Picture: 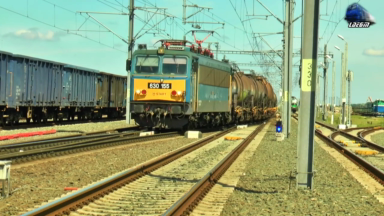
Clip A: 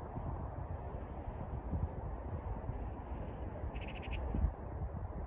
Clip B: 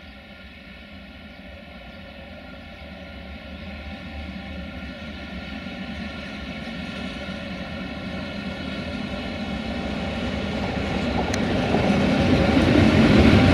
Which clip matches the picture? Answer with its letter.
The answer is B